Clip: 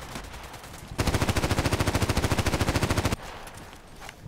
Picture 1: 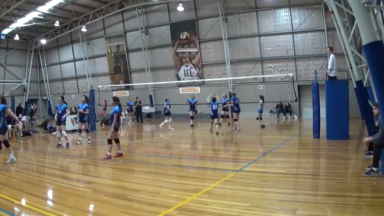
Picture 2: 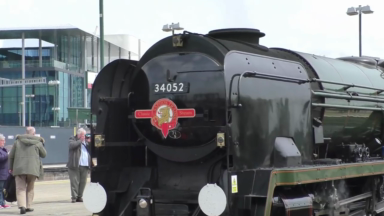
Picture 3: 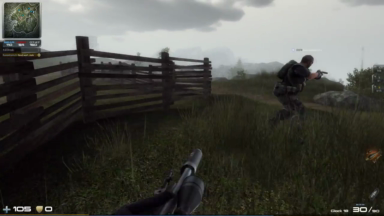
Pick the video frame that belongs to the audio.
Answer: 3